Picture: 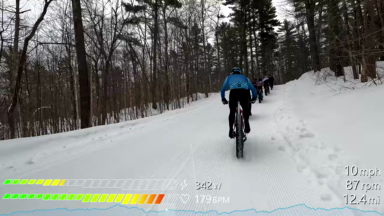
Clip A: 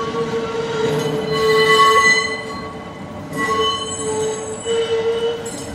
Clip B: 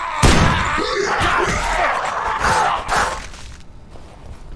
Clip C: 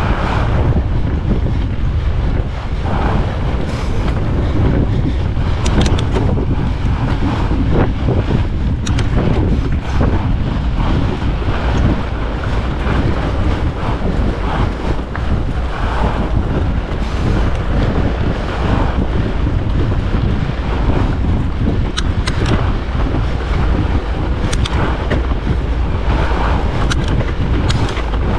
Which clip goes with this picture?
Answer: C